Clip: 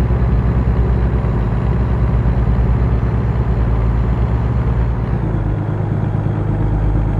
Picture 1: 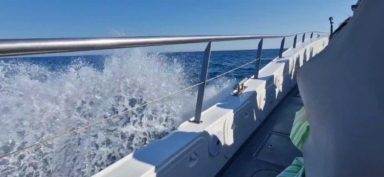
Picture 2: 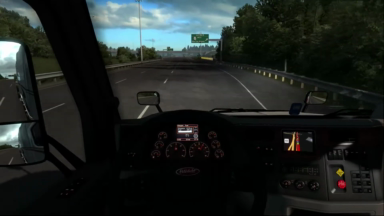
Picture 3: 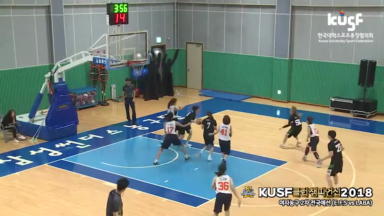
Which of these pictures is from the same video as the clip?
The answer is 2